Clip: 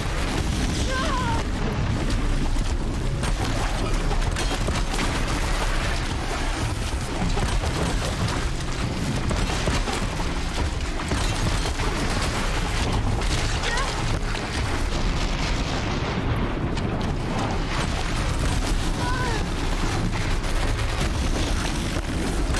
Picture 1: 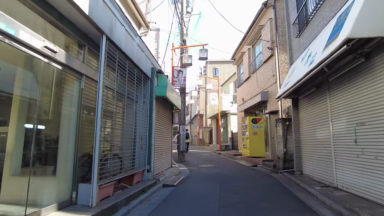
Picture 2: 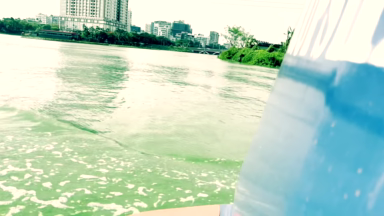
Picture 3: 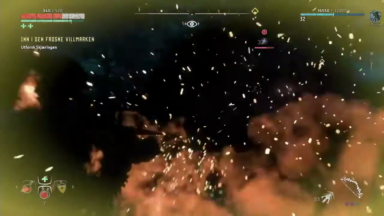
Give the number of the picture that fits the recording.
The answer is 3